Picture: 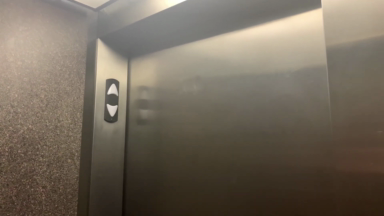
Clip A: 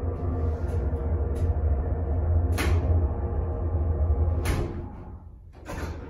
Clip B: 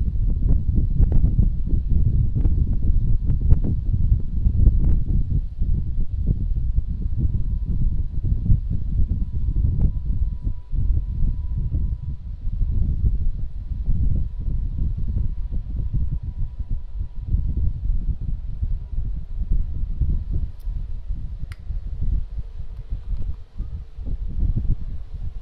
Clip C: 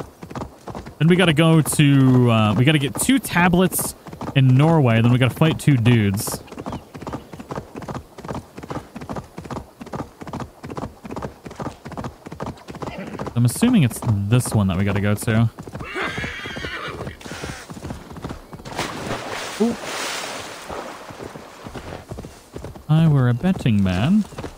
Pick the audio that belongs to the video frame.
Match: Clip A